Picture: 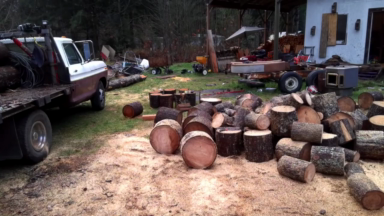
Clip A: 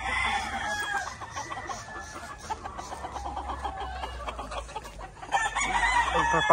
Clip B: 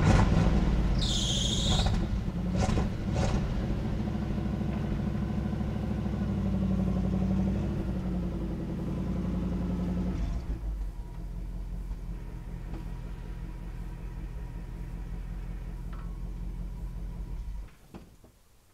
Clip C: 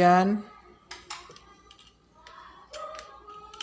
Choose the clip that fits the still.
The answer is B